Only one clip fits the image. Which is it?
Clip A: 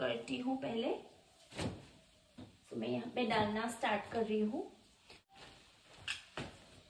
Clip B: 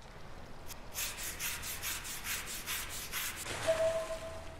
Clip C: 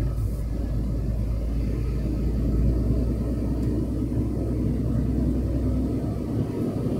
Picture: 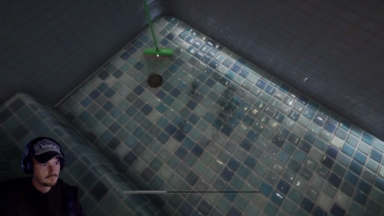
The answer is B